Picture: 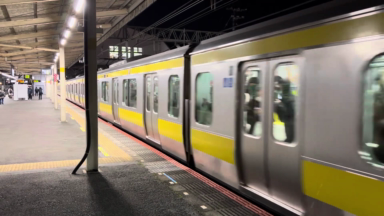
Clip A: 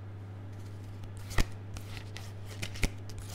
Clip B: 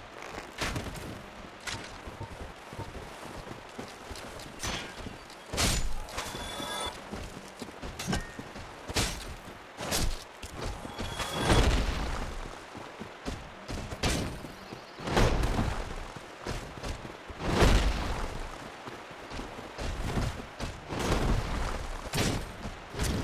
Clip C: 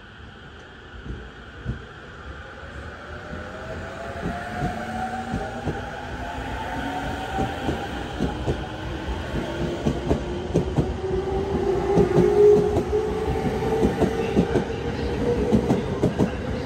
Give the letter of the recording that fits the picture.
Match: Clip C